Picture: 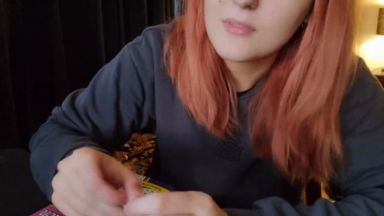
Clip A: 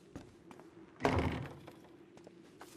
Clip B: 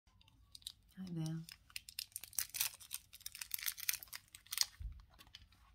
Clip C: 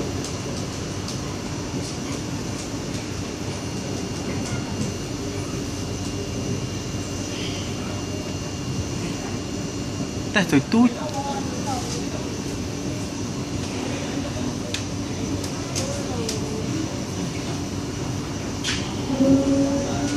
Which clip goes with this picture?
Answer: B